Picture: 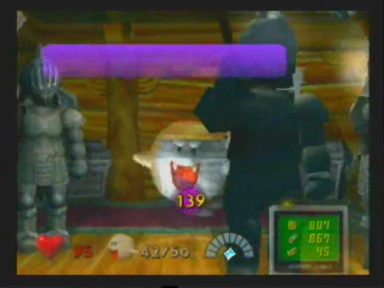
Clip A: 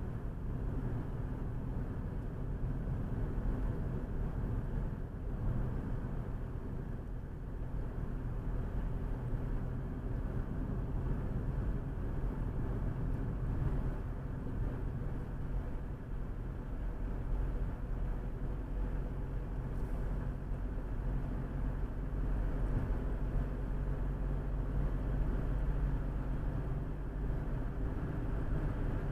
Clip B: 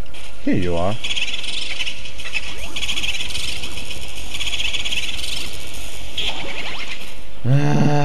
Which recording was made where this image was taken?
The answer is B